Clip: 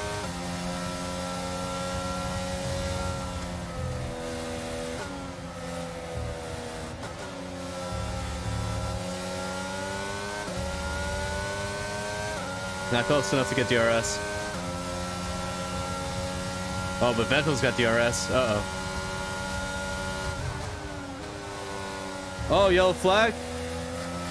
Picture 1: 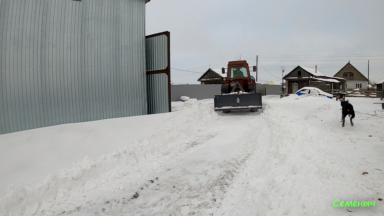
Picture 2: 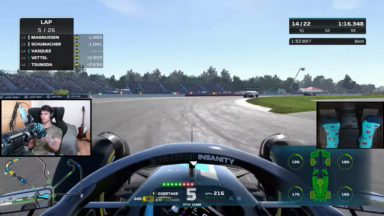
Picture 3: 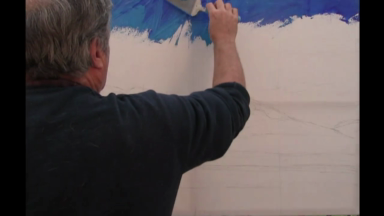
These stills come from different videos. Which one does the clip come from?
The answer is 2